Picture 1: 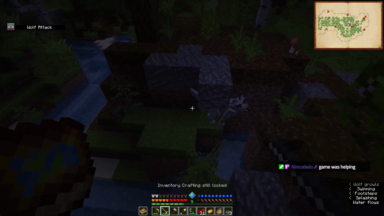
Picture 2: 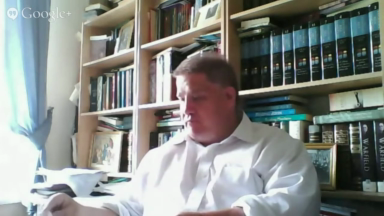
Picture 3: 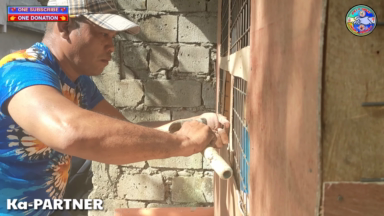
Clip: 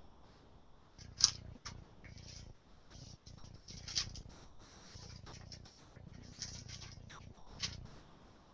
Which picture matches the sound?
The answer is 2